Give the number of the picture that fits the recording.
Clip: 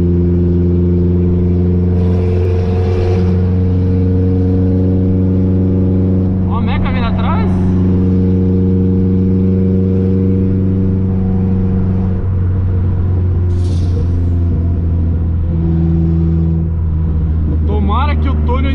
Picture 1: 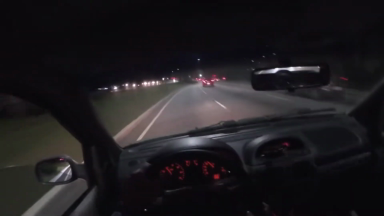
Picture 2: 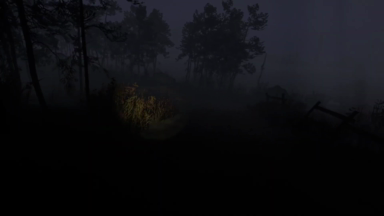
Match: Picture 1